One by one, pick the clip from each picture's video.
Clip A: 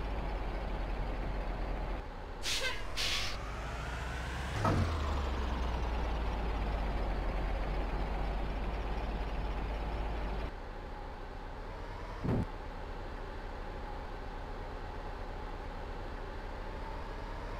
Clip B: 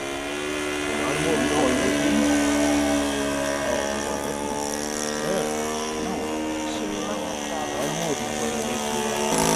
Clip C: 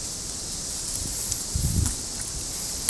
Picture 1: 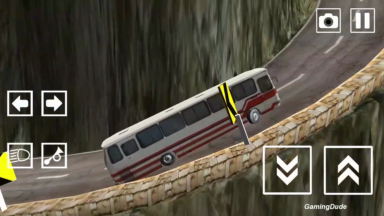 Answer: A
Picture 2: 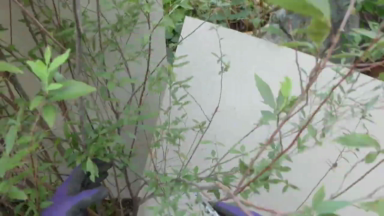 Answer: C